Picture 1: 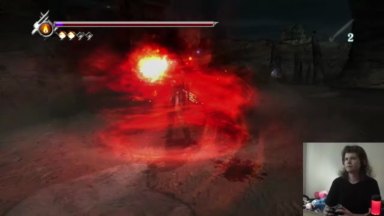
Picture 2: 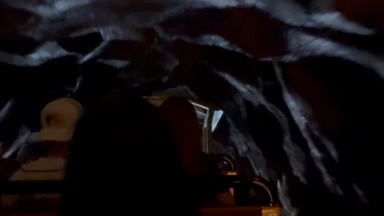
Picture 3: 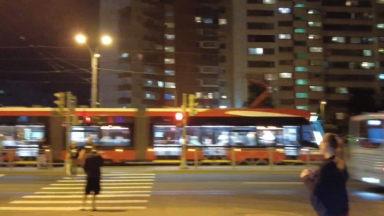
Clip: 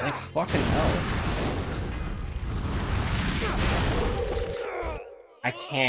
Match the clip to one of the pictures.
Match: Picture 1